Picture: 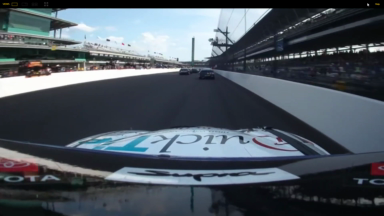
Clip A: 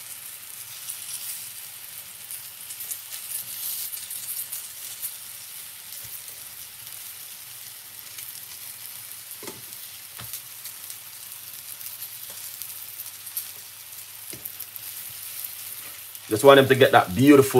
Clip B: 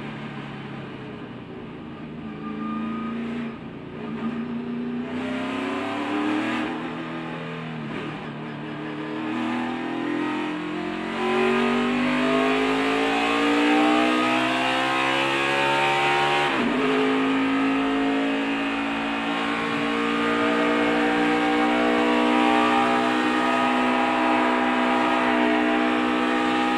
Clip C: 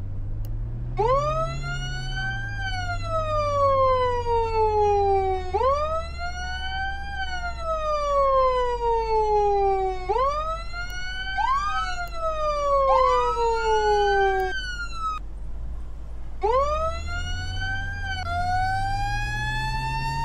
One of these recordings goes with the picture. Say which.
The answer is B